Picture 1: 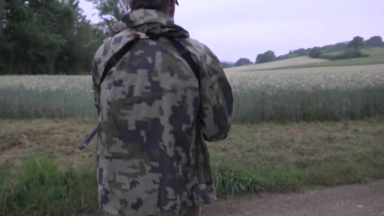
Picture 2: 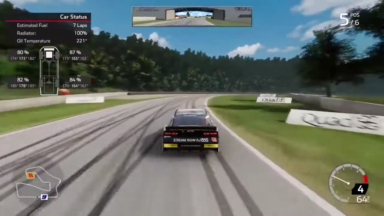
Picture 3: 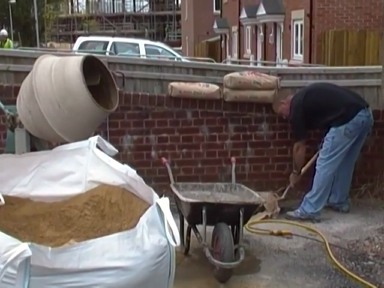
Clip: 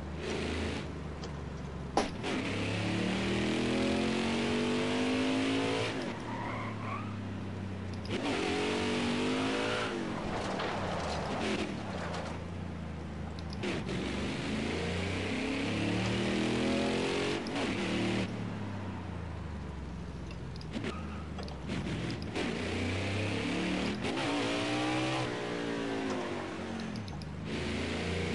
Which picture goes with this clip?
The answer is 2